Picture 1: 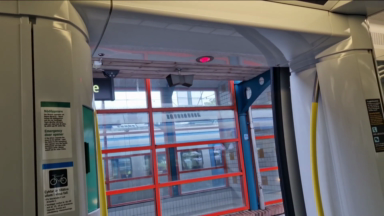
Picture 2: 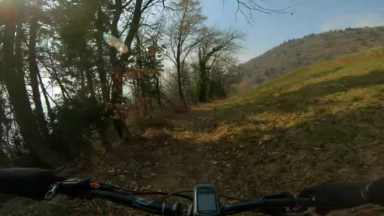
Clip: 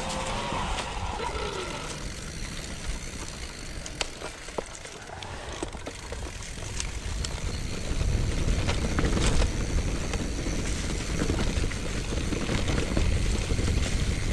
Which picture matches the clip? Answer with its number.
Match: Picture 2